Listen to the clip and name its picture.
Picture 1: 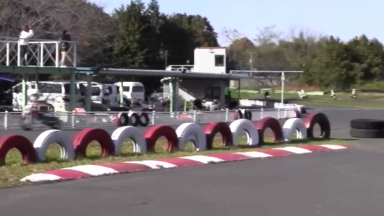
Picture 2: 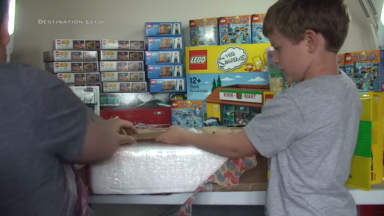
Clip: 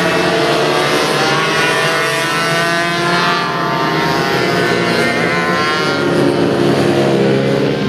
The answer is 1